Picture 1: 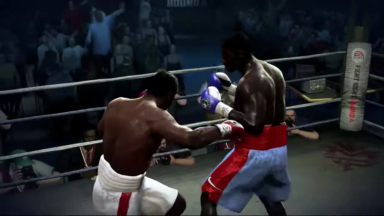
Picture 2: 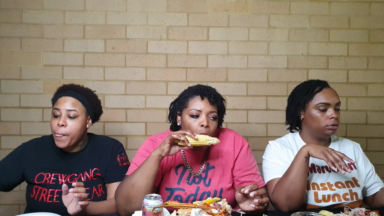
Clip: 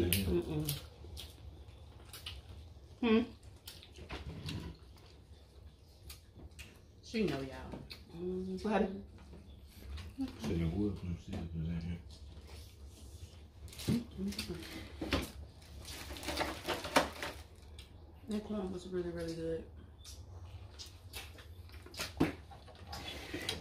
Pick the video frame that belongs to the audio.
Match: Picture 2